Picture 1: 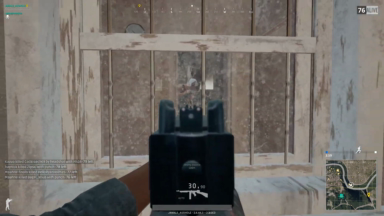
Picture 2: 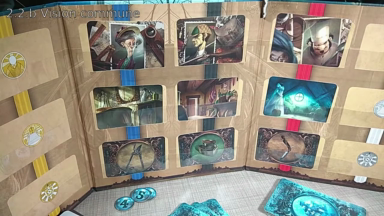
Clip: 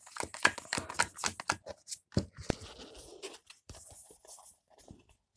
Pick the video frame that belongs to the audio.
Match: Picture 2